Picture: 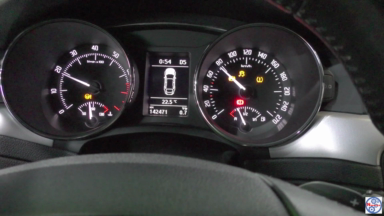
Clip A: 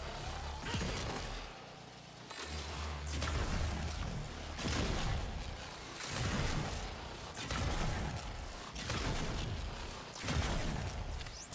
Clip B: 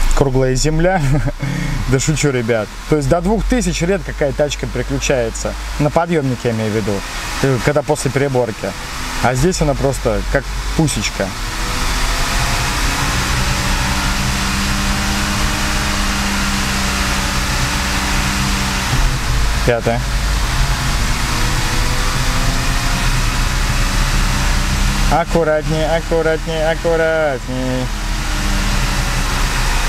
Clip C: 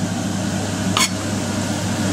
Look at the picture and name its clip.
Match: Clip B